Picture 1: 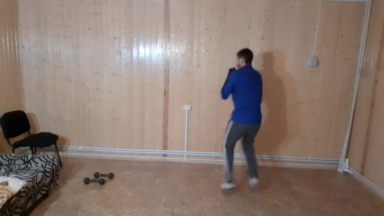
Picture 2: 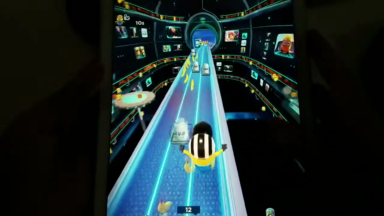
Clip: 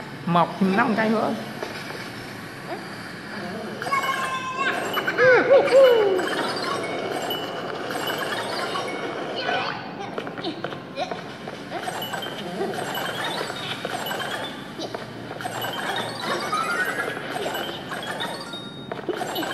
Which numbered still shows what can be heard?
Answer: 2